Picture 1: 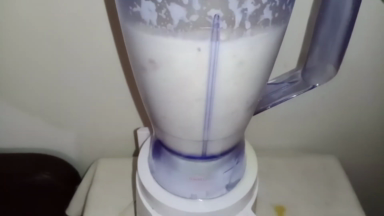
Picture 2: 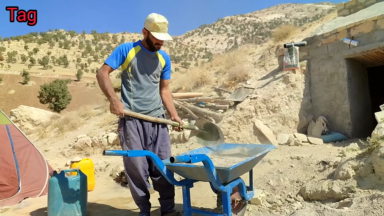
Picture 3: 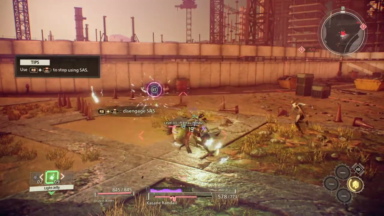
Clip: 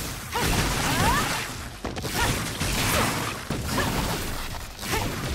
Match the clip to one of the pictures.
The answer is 3